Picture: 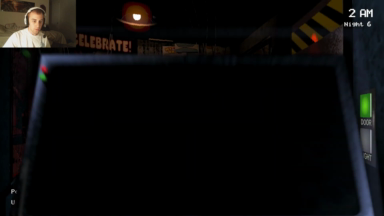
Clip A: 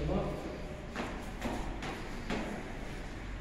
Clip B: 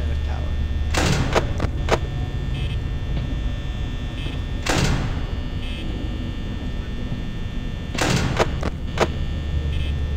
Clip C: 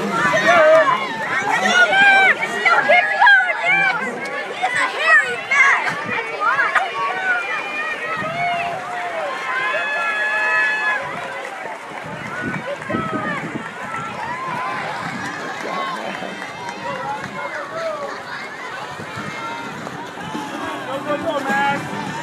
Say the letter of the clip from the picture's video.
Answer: B